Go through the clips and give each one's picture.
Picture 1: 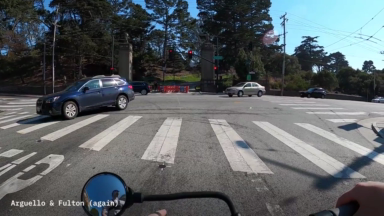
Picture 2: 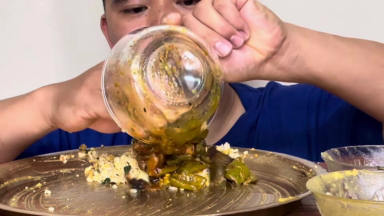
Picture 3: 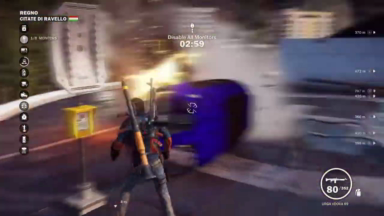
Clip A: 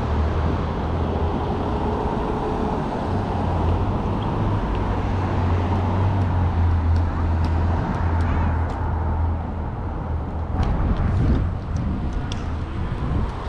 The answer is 1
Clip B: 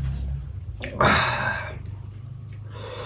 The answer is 2